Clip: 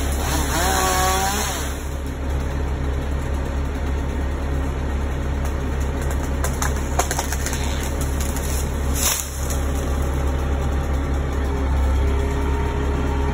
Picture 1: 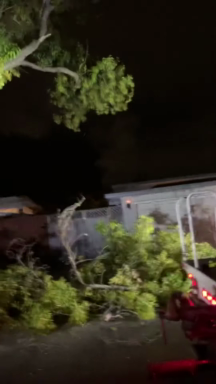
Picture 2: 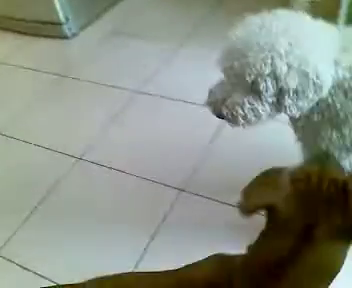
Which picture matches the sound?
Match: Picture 1